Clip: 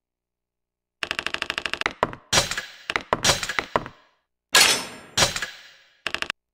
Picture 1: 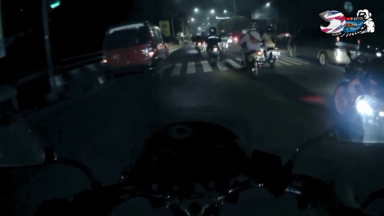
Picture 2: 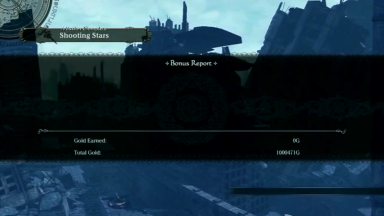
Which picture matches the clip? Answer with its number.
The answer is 2